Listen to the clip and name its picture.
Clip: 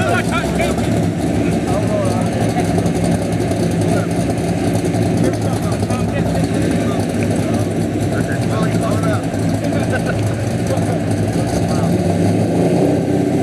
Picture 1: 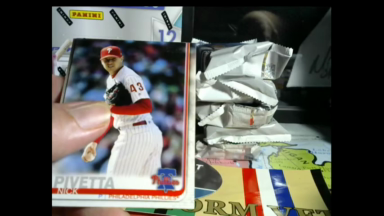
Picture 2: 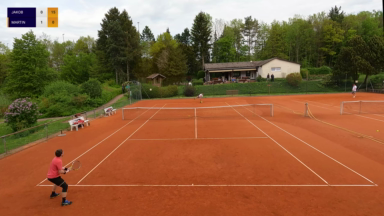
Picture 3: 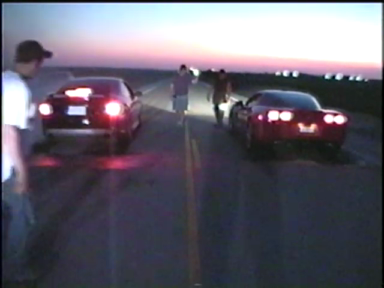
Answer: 3